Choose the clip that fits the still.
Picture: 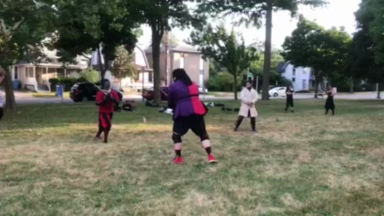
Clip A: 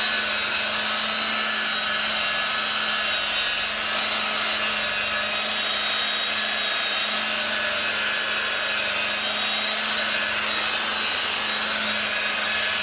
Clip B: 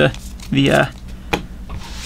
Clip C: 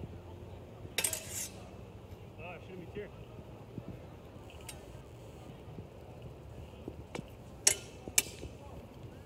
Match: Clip C